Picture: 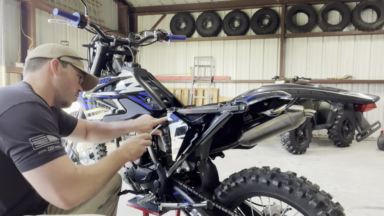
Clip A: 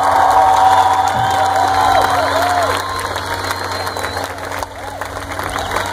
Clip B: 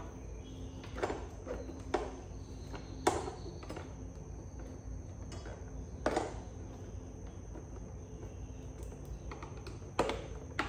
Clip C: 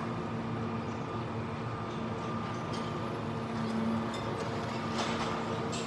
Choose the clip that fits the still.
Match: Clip B